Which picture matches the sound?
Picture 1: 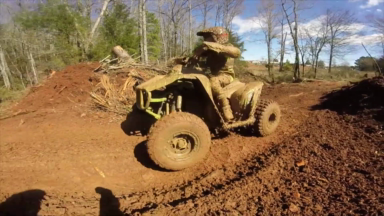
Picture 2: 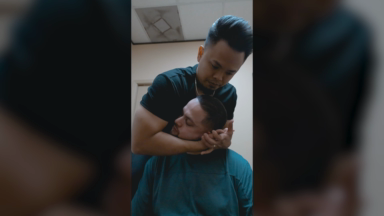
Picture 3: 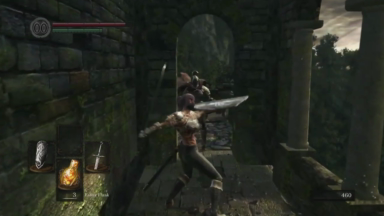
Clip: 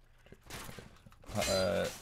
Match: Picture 3